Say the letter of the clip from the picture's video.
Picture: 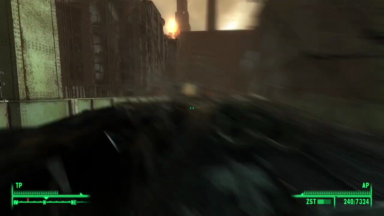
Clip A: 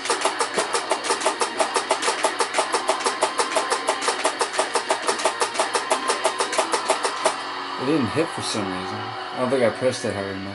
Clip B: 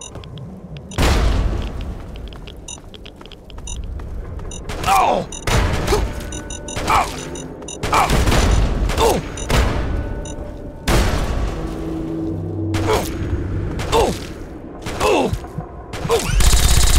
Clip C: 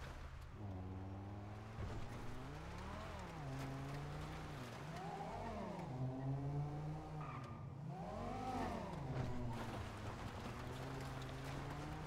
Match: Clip B